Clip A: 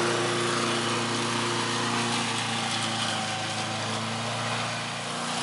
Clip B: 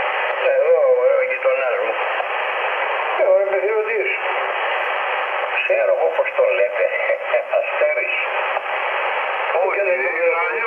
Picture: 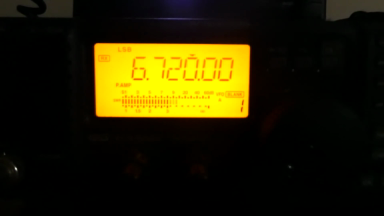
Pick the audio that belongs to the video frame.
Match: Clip B